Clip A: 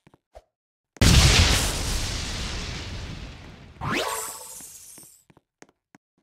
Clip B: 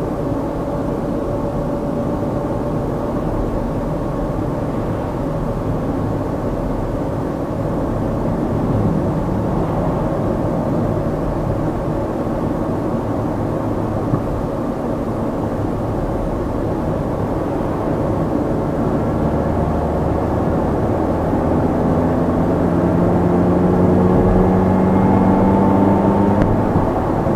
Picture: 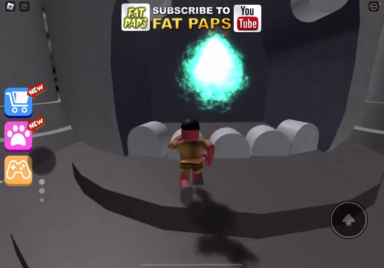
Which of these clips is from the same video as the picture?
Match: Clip A